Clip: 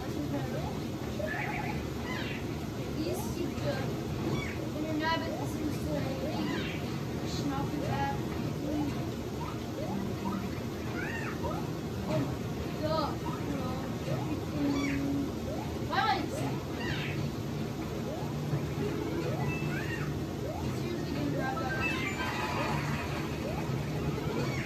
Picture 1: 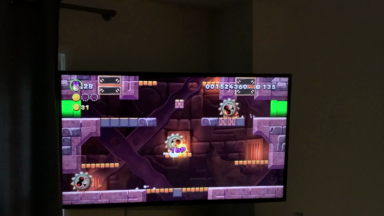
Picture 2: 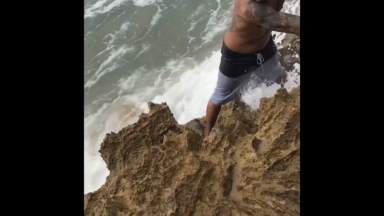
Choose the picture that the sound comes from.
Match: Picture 1